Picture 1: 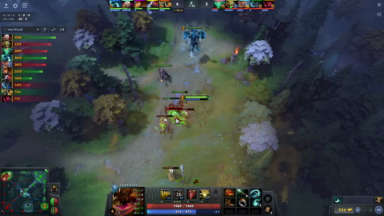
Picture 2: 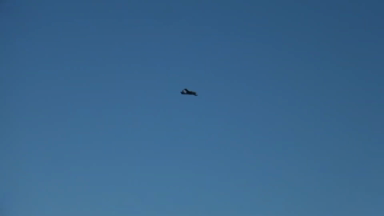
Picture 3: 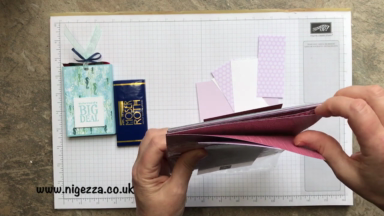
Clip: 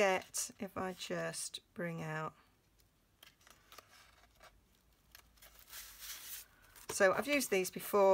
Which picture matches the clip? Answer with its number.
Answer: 3